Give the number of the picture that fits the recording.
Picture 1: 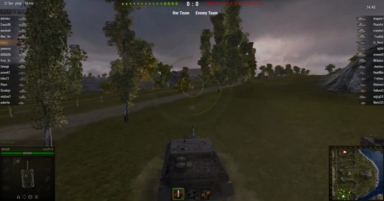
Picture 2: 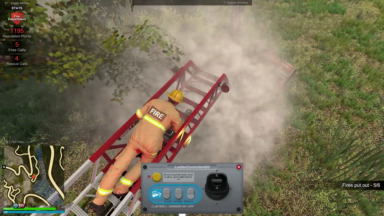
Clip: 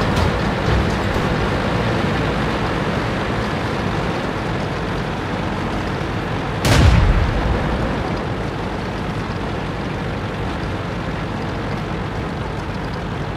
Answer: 1